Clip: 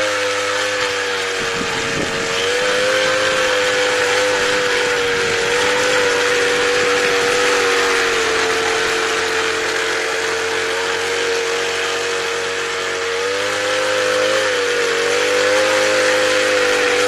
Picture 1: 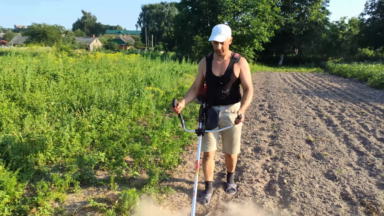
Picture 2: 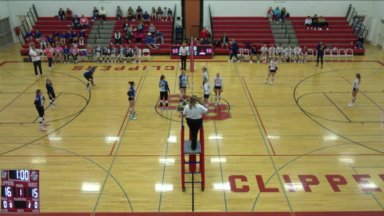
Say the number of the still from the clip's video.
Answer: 1